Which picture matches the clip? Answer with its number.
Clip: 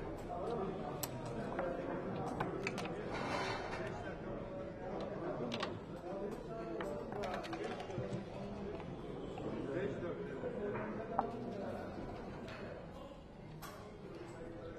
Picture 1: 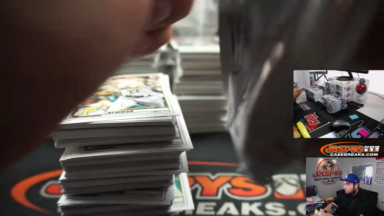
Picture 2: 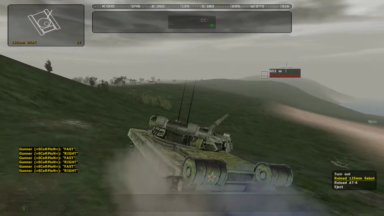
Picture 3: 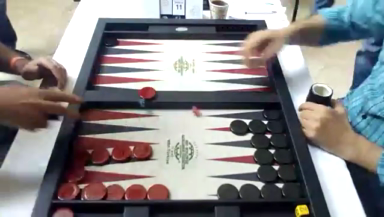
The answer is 3